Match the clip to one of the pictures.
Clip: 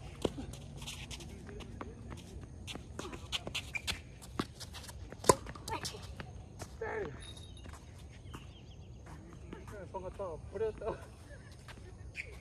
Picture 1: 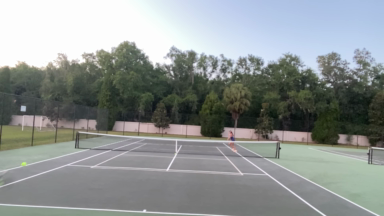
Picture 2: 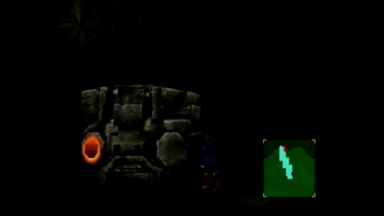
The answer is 1